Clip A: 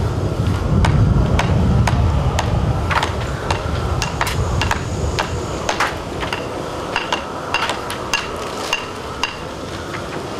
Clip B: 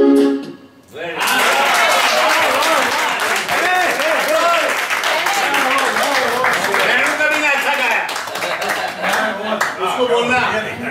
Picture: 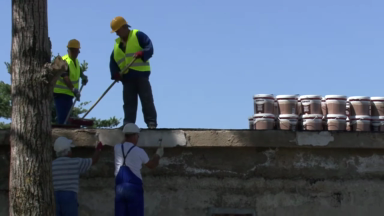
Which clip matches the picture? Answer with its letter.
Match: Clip A